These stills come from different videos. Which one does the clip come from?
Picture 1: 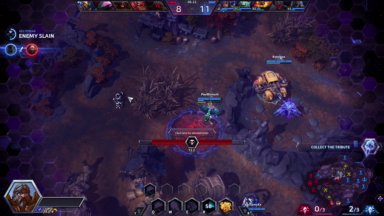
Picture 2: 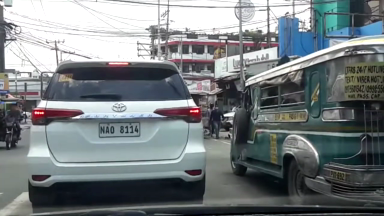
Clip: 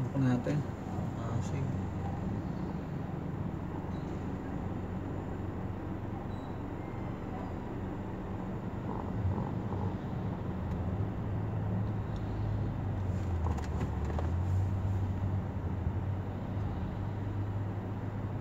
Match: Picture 2